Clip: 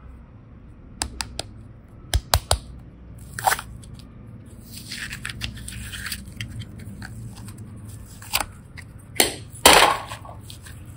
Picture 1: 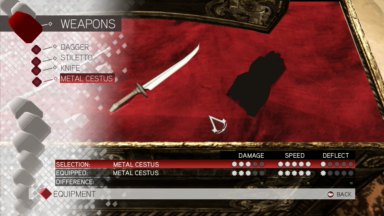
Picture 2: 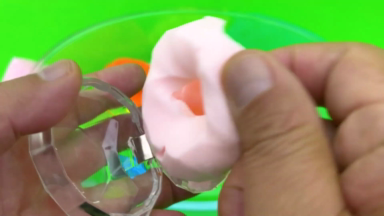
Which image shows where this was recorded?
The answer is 2